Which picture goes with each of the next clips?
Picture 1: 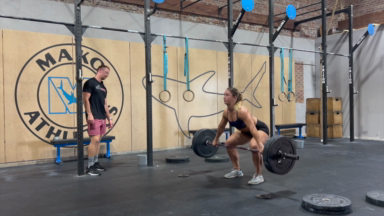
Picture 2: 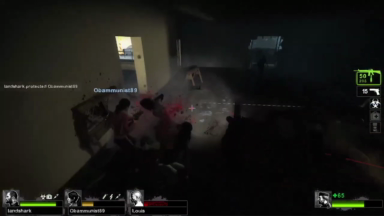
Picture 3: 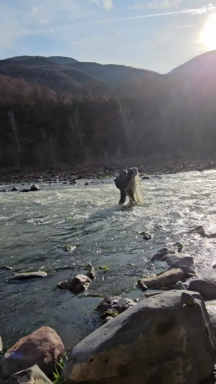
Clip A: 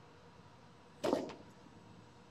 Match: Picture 1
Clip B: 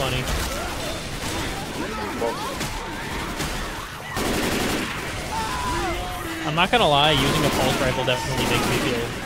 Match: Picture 2